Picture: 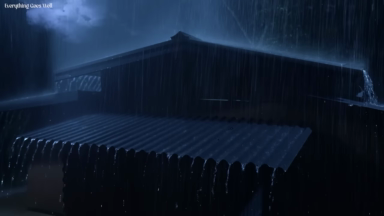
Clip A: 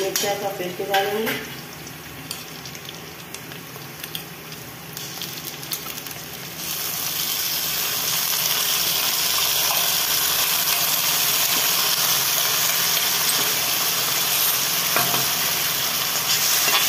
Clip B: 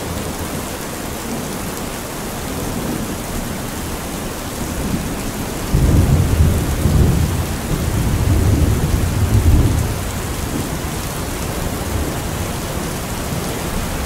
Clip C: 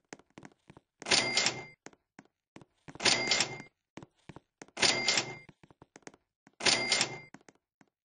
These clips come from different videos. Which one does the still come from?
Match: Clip B